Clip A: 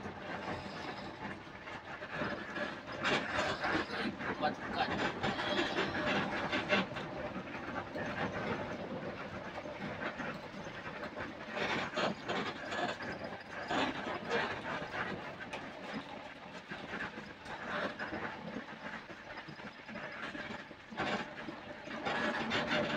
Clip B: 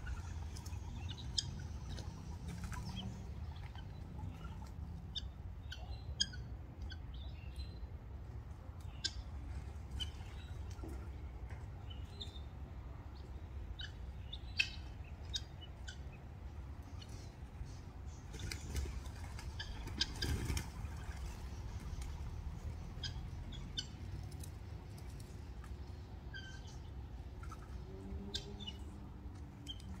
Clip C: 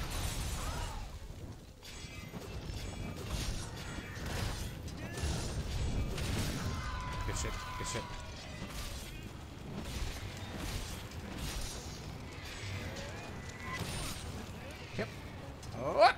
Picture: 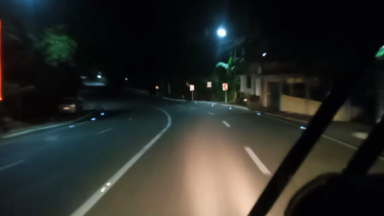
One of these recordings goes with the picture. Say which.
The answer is A